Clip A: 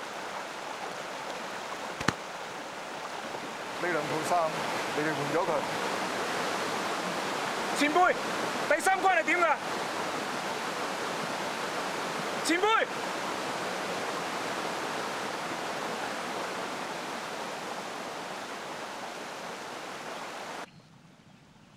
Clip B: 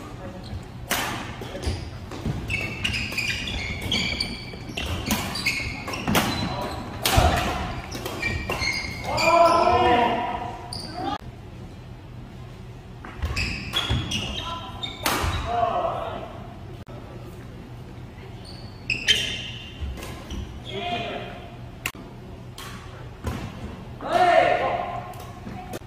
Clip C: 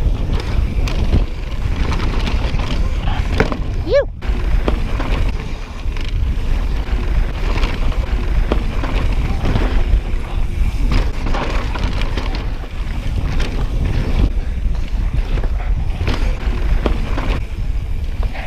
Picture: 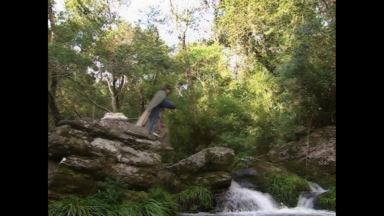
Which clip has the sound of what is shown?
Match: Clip A